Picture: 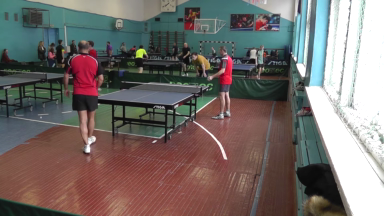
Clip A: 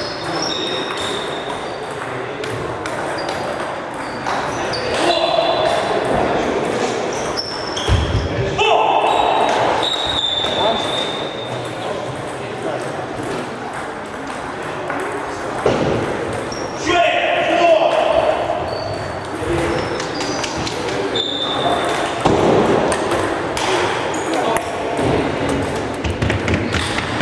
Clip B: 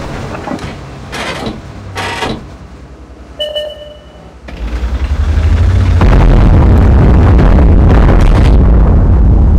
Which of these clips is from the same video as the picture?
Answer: A